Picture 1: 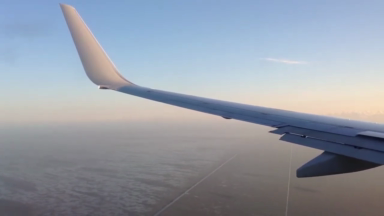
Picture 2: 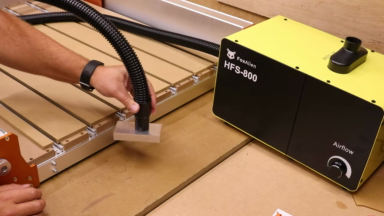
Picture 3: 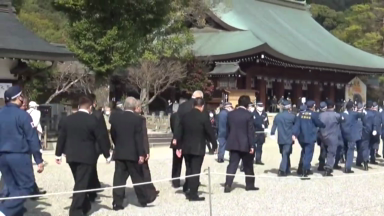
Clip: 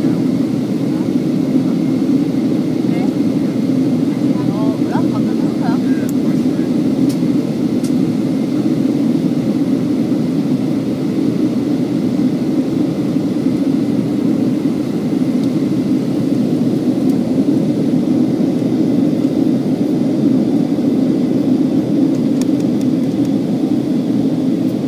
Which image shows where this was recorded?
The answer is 1